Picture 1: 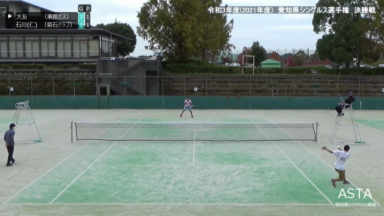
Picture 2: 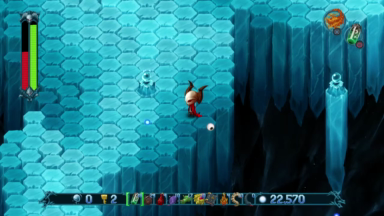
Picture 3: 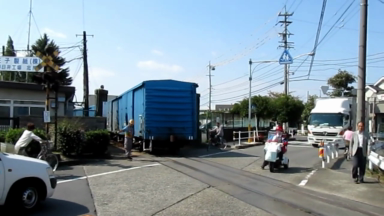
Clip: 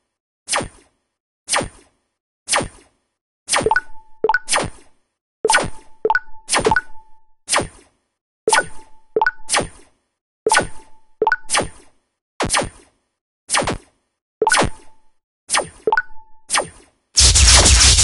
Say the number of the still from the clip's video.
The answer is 2